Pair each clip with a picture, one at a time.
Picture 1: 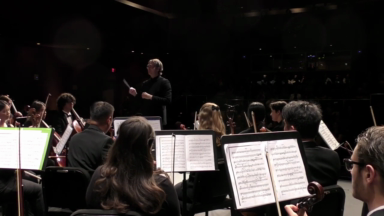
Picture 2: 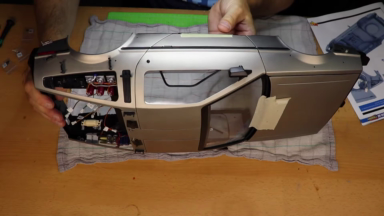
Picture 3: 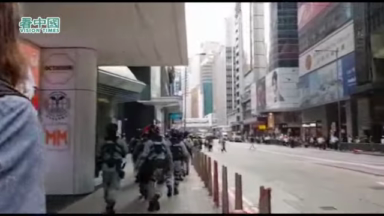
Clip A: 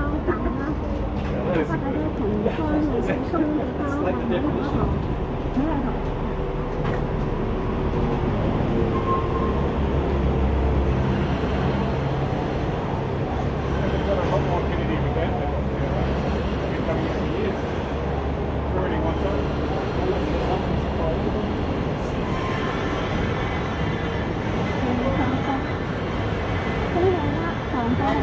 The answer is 3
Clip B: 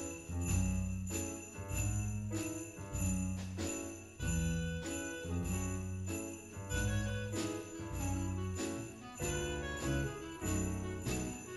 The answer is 1